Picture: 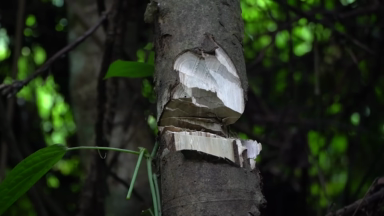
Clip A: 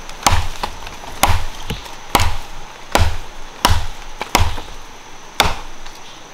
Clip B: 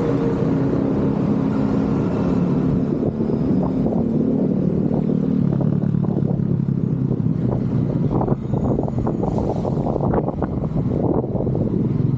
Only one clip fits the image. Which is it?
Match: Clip A